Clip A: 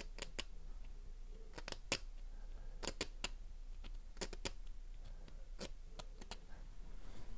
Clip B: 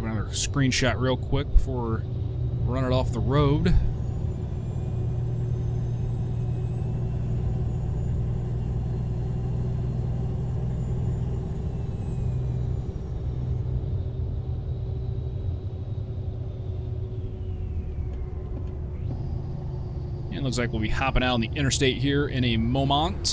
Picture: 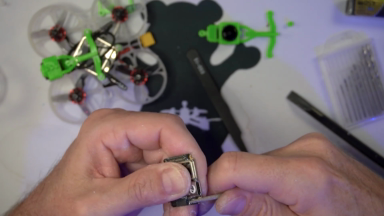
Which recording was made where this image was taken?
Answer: A